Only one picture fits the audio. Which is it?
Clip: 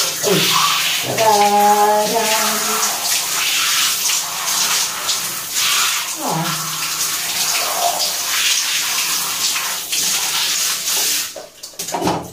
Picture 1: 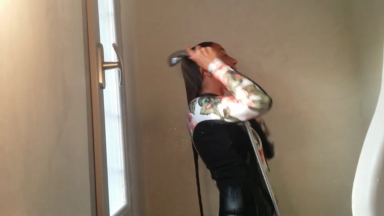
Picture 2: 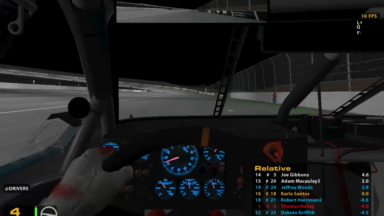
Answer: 1